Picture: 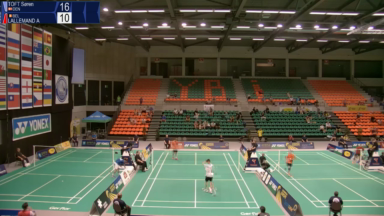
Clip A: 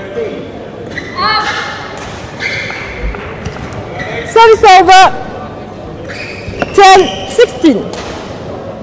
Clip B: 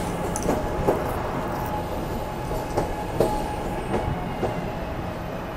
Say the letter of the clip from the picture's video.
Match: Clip A